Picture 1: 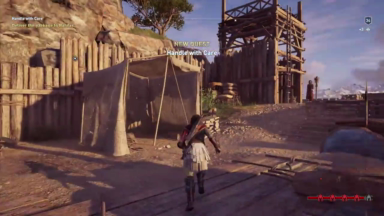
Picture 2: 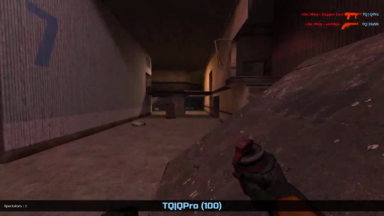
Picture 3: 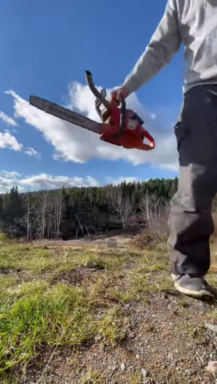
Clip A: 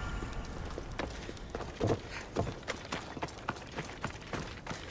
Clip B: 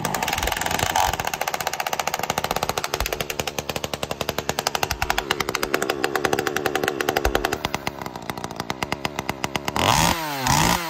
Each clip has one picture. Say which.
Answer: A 1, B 3